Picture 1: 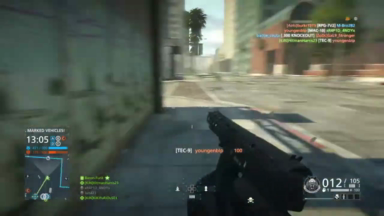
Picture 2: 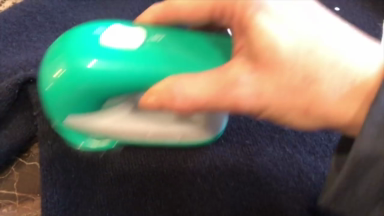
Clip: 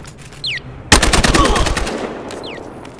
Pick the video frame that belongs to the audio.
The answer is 1